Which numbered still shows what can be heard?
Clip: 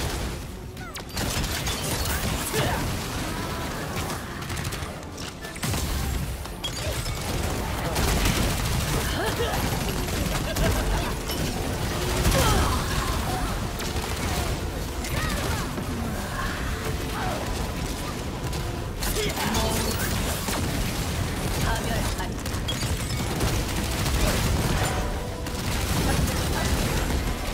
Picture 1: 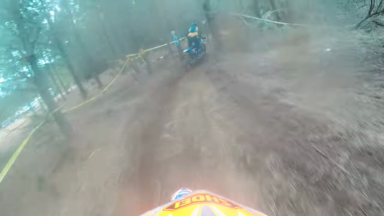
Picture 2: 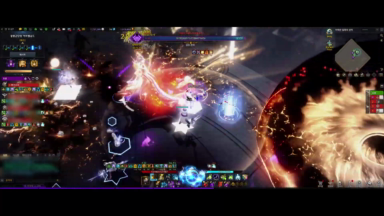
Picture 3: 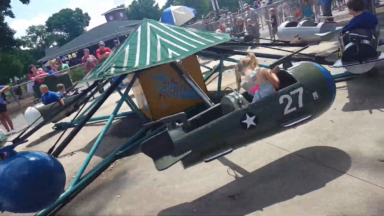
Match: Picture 2